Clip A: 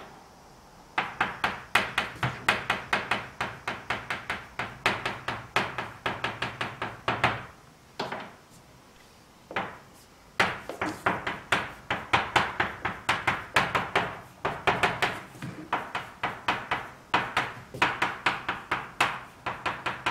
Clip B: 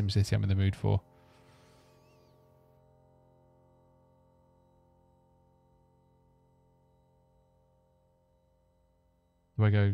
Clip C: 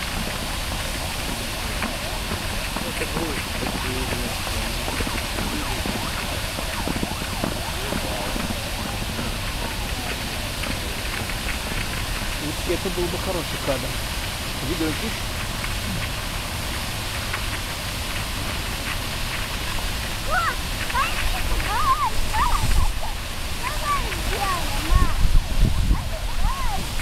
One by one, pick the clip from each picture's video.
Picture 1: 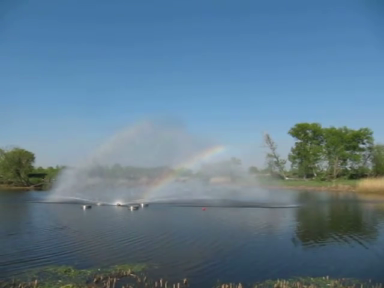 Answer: C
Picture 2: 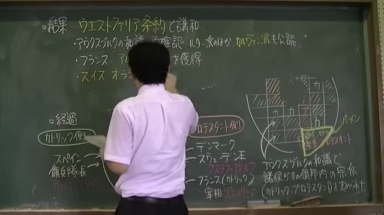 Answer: A